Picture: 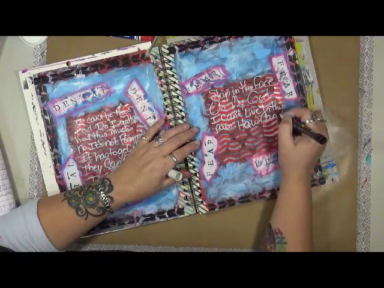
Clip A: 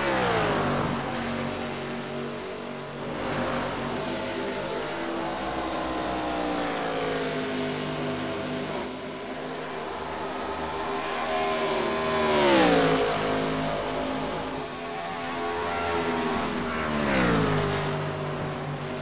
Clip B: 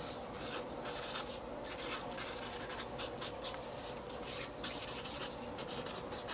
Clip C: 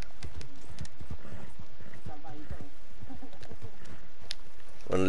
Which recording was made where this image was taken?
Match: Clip B